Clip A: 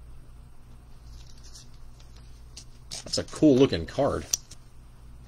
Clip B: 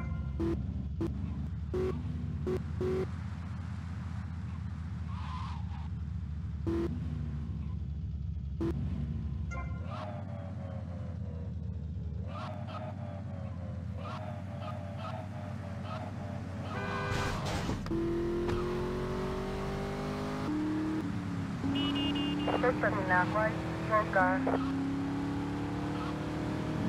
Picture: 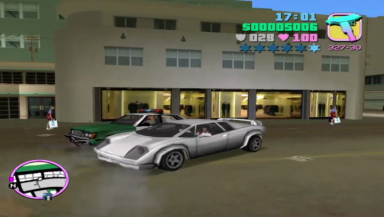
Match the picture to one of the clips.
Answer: B